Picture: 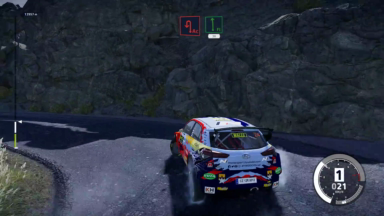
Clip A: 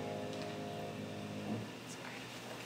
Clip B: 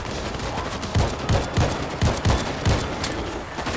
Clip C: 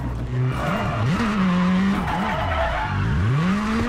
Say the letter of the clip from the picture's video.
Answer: C